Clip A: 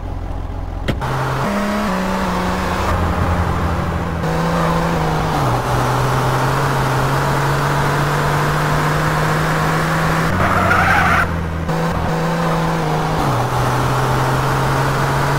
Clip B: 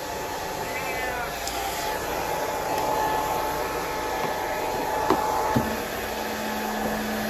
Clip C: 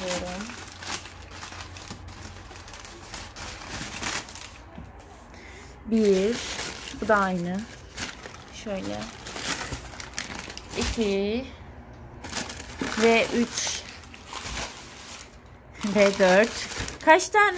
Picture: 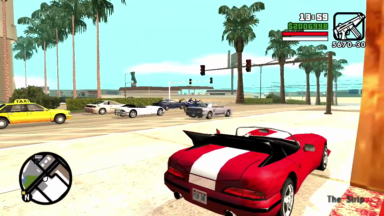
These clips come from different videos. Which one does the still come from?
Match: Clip A